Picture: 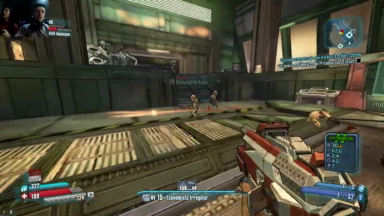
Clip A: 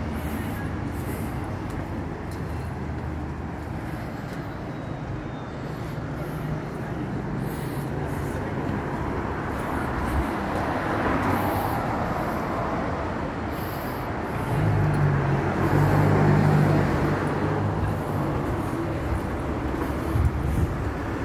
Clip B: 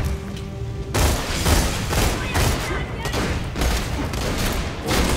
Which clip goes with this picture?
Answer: B